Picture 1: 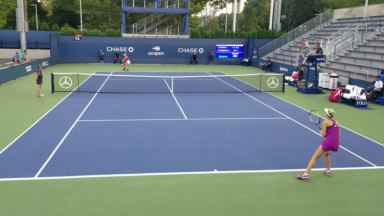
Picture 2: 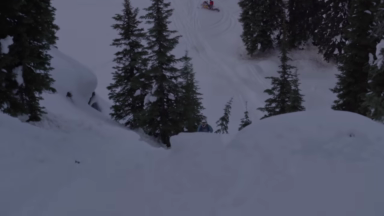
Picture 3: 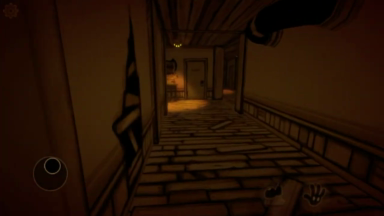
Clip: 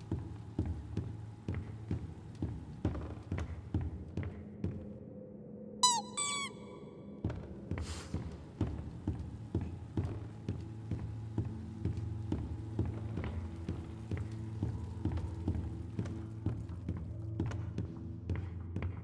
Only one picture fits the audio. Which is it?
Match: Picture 3